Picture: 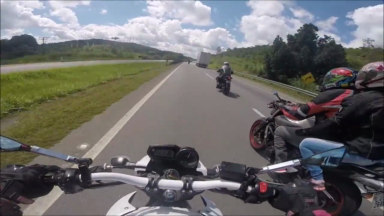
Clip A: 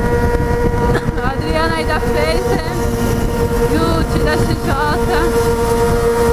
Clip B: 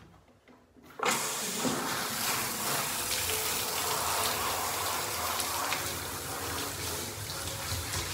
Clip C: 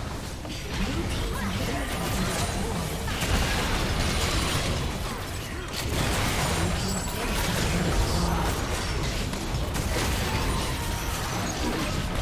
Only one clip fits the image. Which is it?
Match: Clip A